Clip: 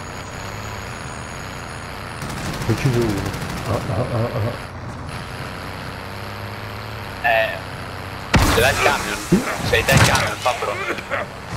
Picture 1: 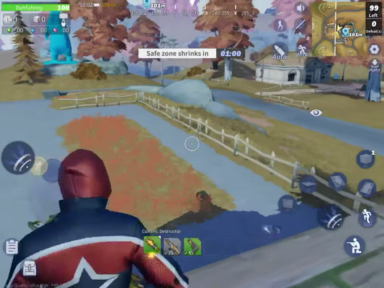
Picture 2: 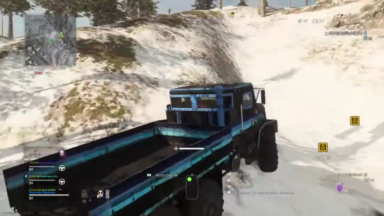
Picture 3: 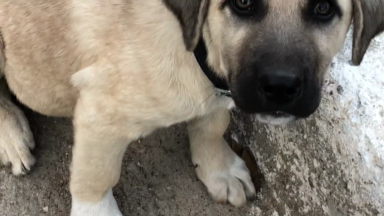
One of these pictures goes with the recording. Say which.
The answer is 2